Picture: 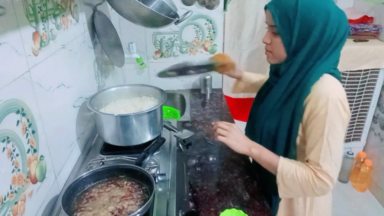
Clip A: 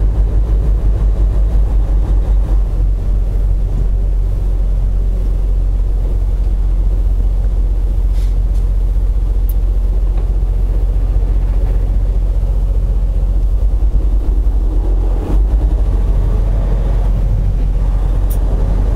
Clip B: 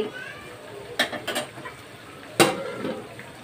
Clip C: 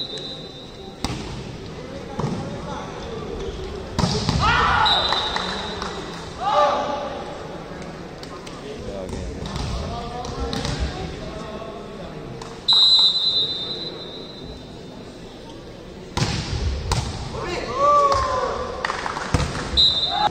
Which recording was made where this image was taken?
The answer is B